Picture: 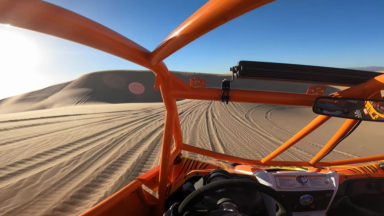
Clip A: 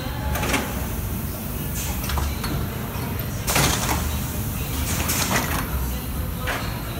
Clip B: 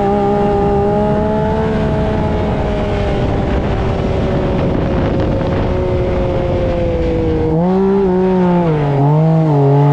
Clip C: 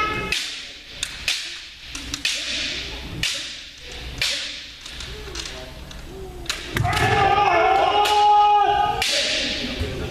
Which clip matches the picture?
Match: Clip B